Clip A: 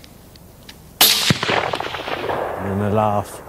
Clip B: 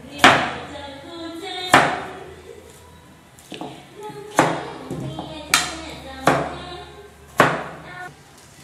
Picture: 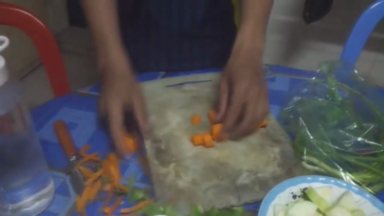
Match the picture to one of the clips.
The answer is B